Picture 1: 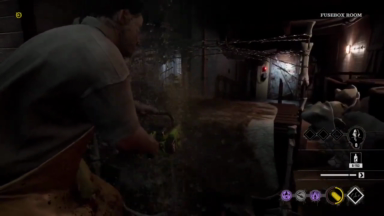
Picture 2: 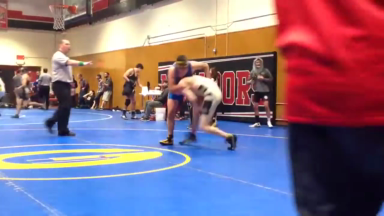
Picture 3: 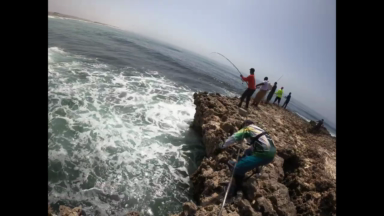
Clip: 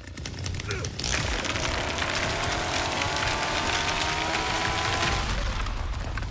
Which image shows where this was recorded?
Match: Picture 1